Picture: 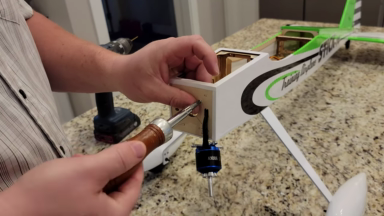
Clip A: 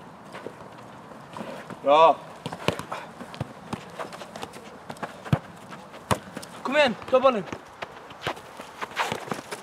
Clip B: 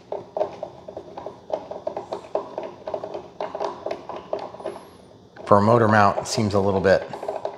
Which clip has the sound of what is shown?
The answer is B